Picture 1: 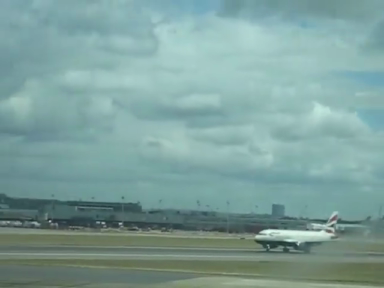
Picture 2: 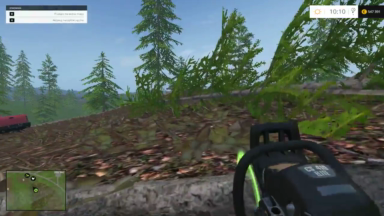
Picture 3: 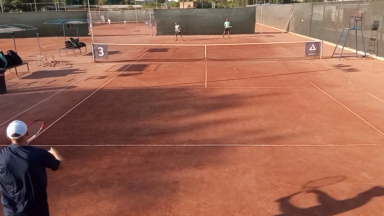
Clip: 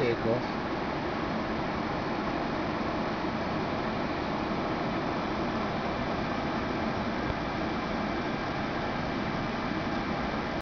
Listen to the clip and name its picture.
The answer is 1